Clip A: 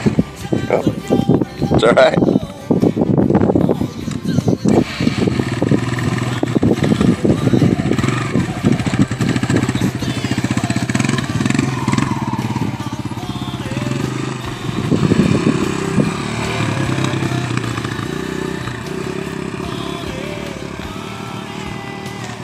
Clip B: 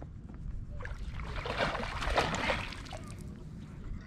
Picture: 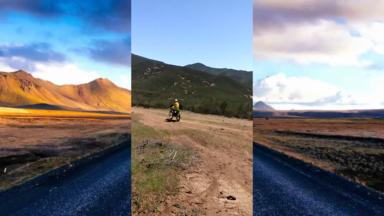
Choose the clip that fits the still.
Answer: A